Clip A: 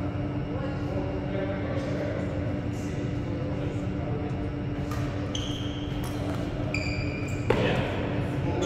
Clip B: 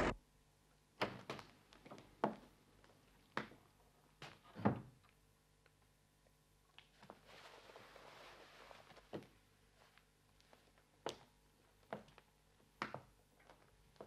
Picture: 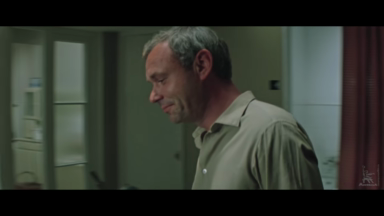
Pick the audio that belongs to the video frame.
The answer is B